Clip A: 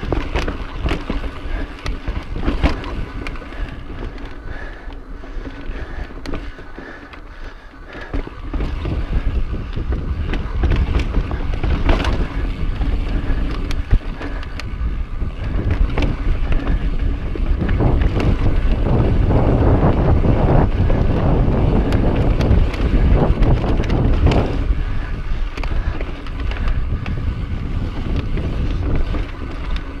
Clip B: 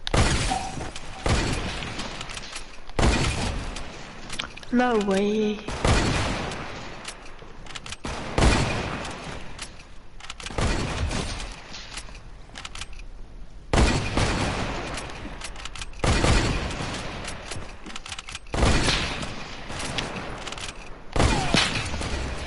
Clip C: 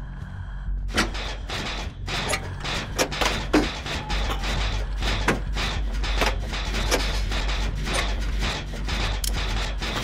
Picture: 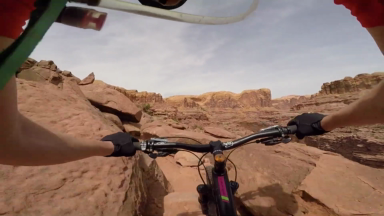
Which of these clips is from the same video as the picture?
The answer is A